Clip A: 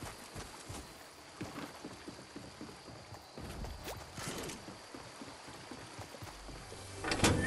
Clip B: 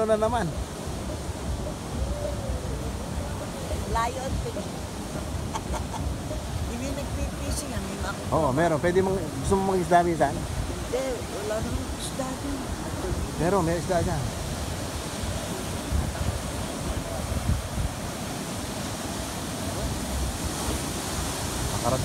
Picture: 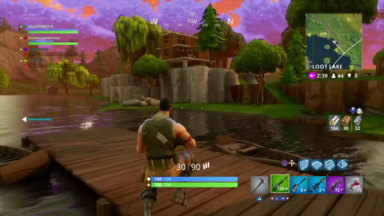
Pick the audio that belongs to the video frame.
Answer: A